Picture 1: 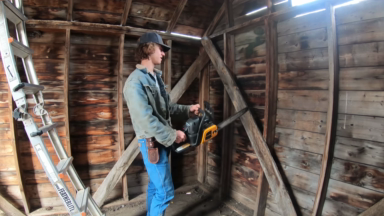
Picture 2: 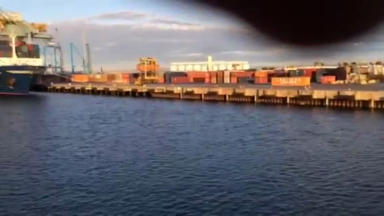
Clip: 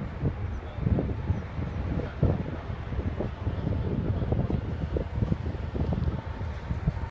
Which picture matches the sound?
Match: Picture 2